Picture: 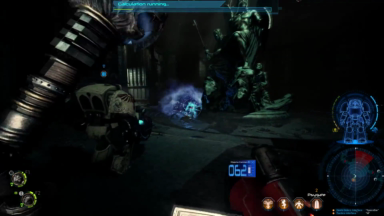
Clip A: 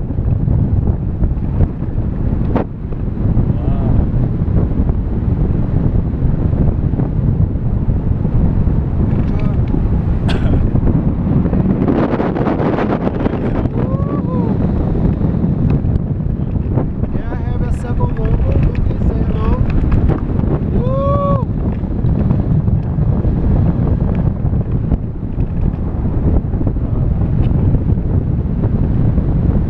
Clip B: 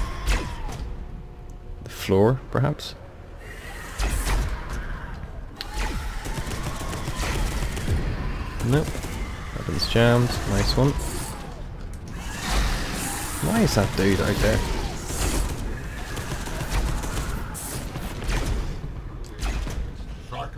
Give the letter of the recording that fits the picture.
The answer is B